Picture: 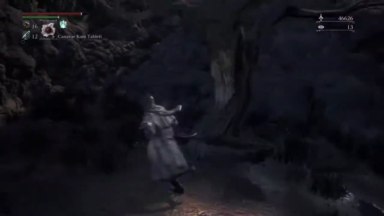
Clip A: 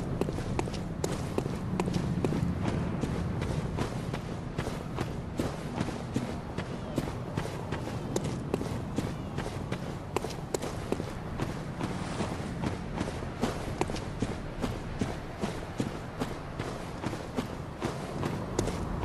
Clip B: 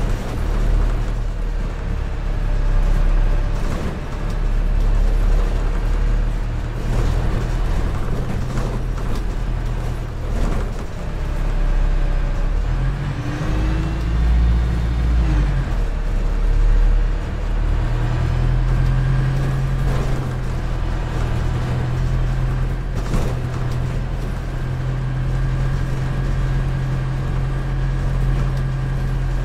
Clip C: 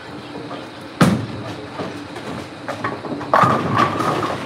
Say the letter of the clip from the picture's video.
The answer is A